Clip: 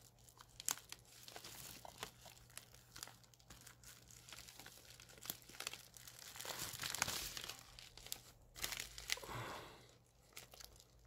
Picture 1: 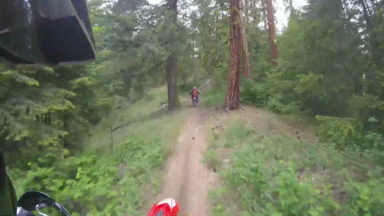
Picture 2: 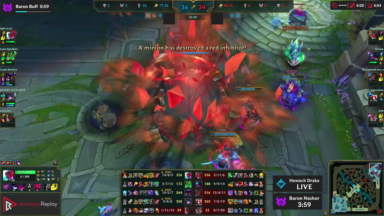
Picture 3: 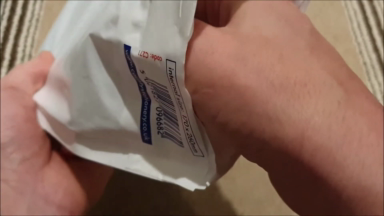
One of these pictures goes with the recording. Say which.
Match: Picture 3